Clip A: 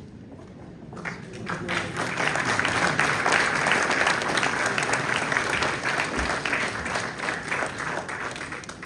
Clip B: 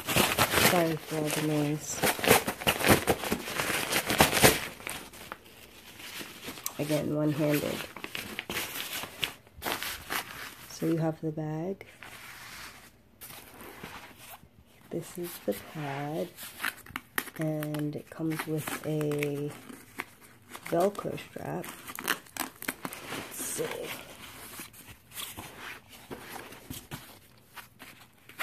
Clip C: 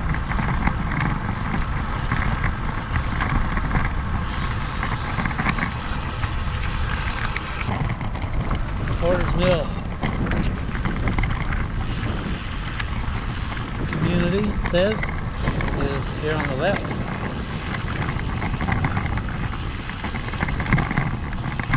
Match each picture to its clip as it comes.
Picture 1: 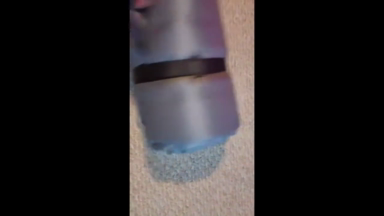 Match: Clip B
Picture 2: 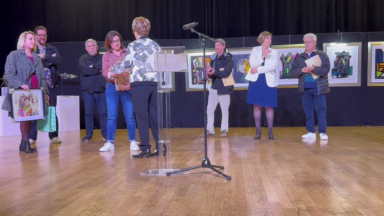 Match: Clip A